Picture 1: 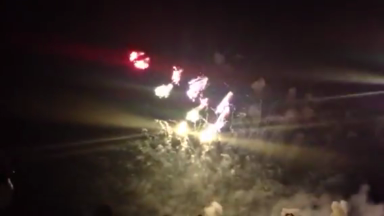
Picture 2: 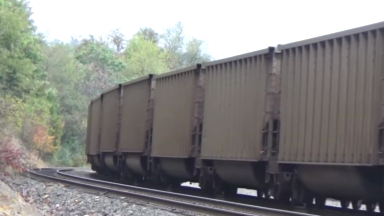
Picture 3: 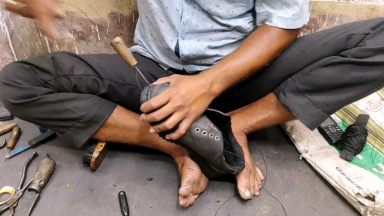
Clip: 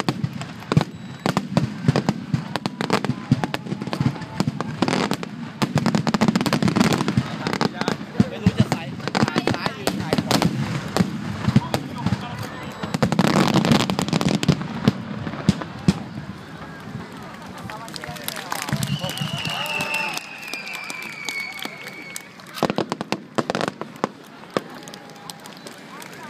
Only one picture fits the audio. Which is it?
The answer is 1